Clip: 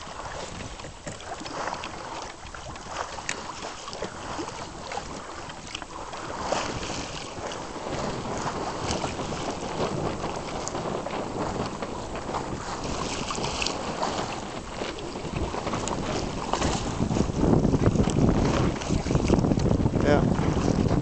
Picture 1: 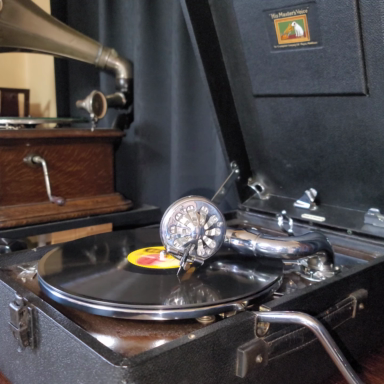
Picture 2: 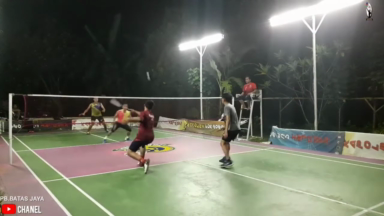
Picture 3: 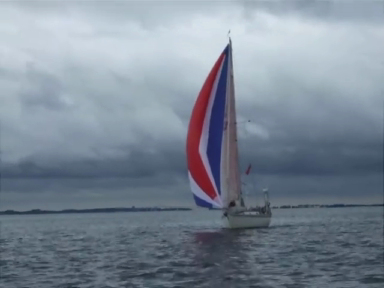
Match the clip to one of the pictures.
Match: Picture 3